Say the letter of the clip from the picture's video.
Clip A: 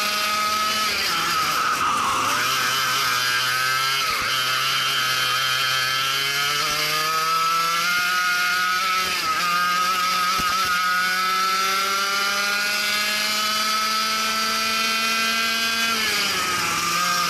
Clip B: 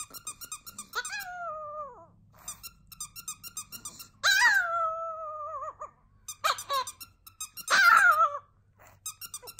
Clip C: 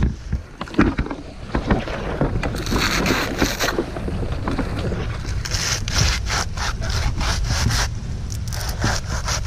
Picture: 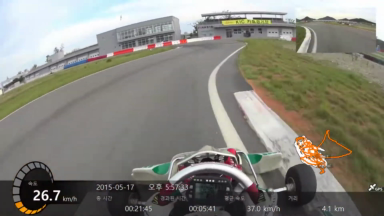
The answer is A